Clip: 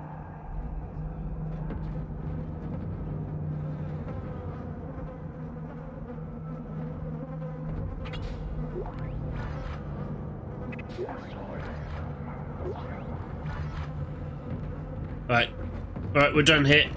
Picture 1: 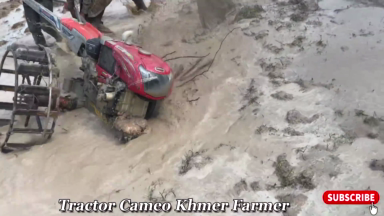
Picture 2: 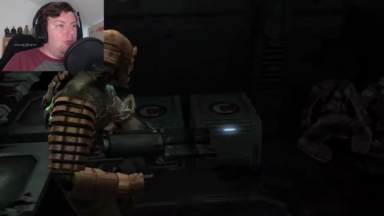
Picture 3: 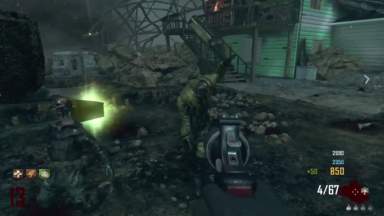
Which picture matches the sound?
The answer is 2